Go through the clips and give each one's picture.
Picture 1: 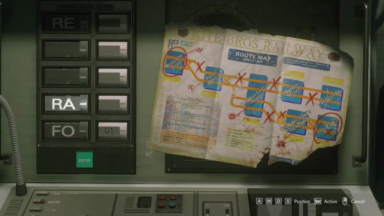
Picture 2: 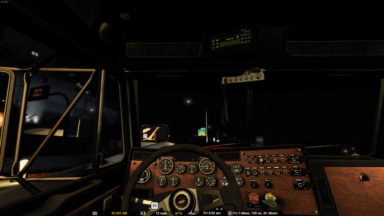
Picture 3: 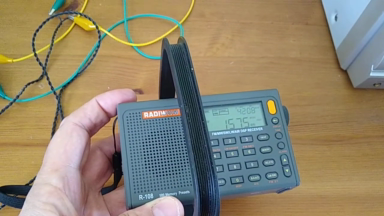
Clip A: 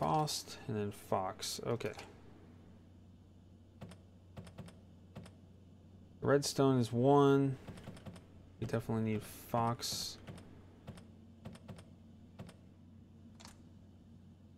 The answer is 1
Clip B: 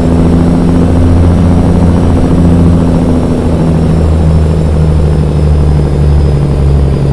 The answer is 2